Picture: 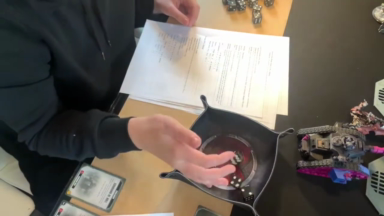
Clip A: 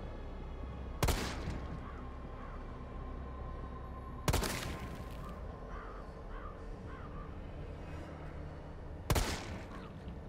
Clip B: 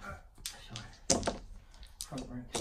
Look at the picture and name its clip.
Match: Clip B